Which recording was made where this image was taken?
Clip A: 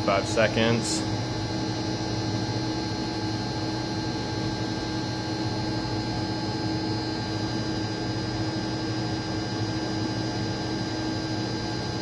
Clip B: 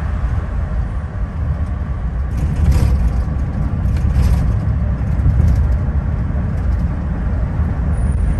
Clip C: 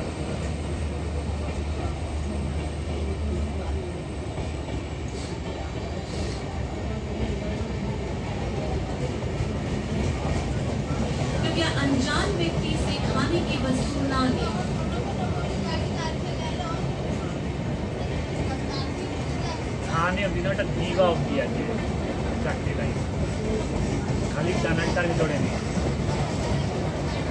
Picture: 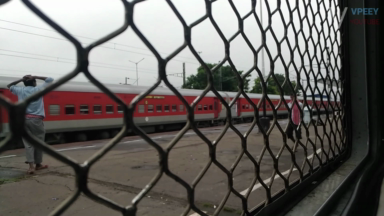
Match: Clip C